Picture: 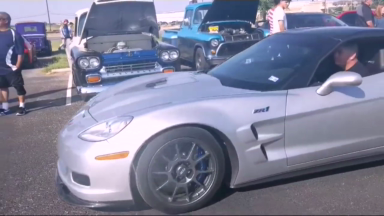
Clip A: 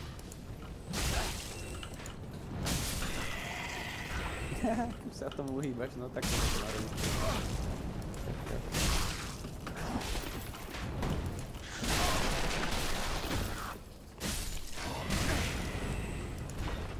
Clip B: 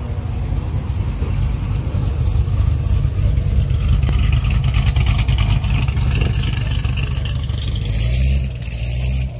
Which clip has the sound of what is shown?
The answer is B